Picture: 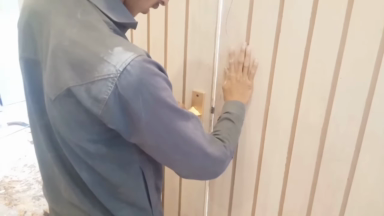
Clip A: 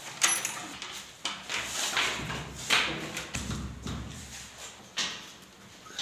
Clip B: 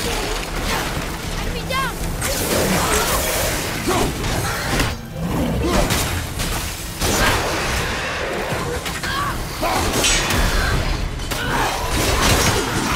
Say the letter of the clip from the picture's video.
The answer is A